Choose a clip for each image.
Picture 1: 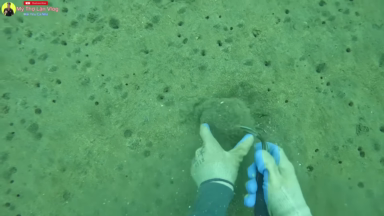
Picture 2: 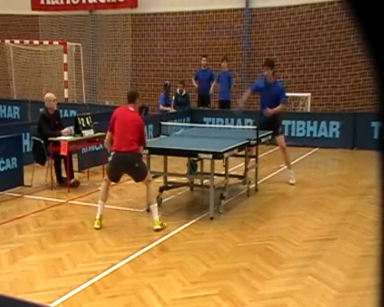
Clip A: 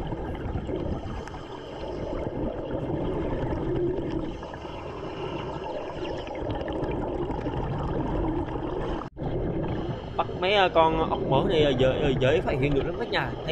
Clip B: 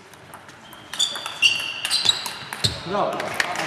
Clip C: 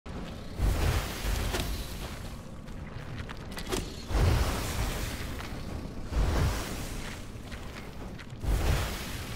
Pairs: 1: A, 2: B